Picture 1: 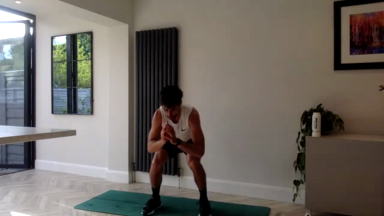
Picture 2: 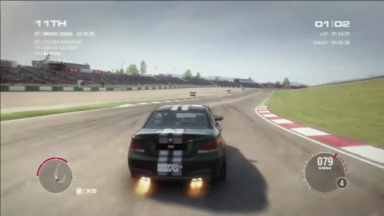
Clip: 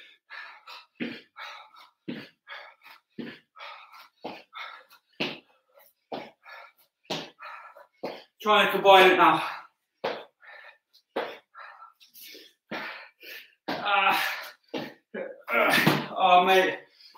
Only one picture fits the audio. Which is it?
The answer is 1